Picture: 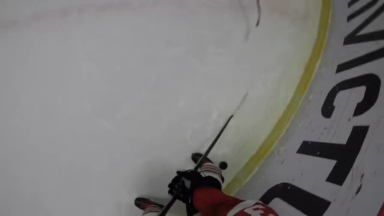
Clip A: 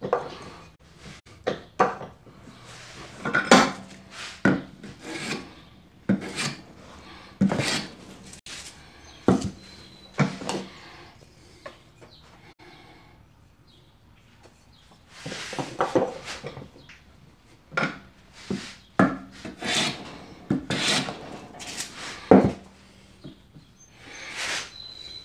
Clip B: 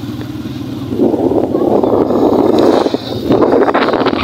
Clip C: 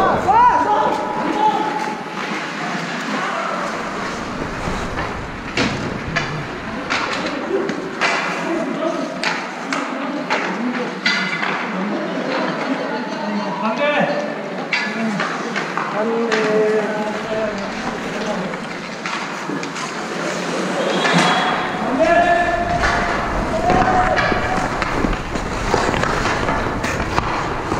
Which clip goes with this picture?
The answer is C